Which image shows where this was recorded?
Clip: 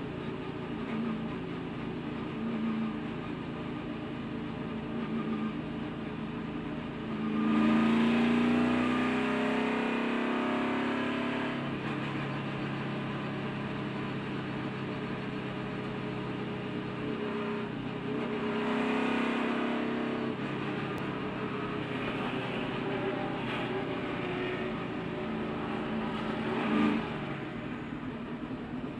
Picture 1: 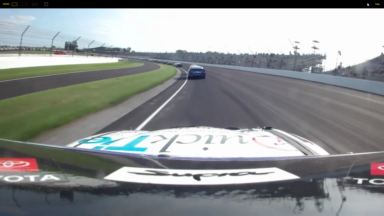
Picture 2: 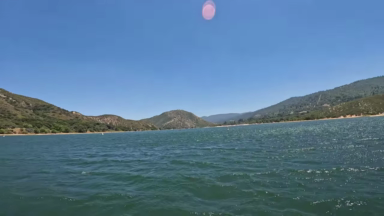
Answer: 1